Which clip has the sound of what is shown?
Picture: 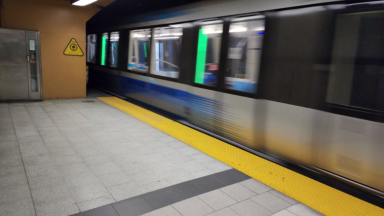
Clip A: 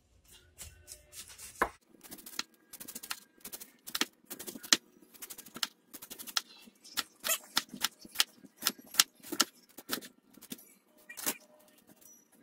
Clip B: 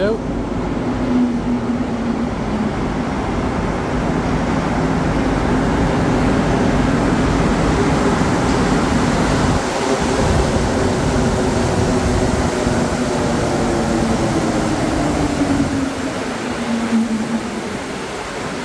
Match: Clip B